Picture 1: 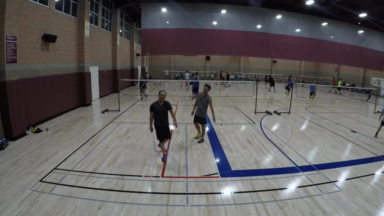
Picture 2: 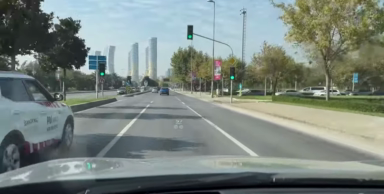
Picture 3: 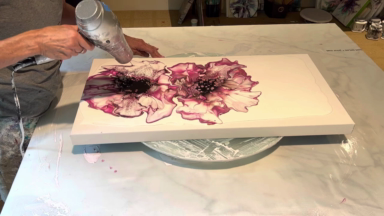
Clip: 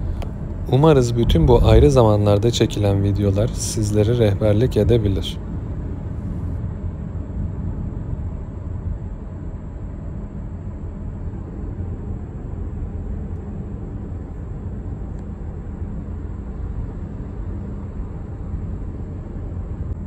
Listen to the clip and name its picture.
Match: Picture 2